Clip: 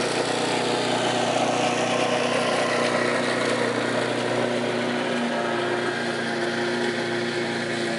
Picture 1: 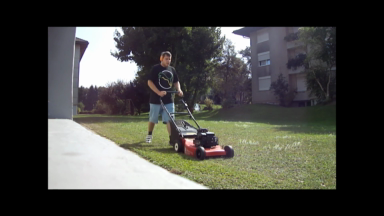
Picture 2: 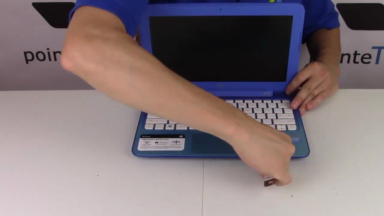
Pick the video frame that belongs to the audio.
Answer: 1